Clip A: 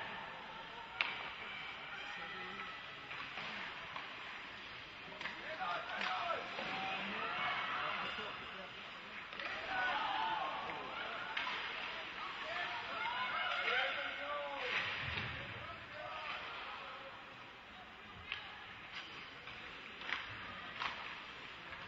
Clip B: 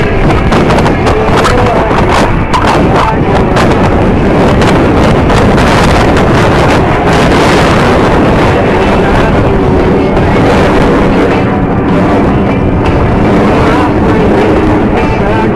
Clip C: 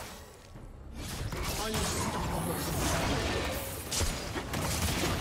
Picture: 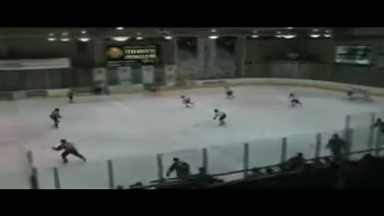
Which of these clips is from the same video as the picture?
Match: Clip A